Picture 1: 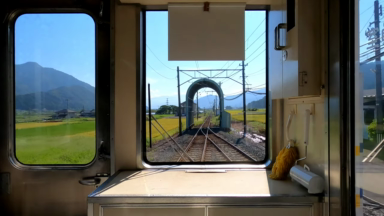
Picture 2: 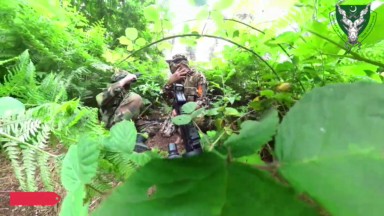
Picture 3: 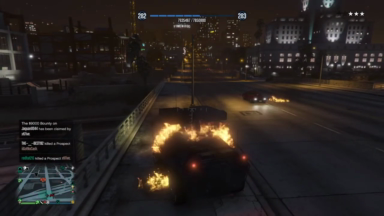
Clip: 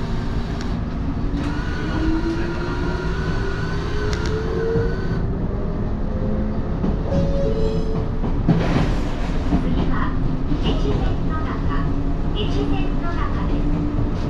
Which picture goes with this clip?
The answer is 1